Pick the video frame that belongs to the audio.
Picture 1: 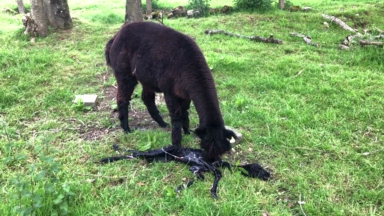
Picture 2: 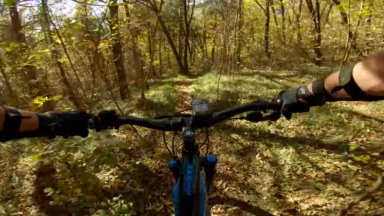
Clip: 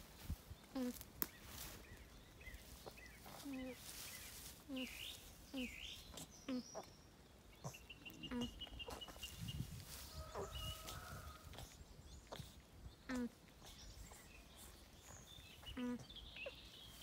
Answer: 1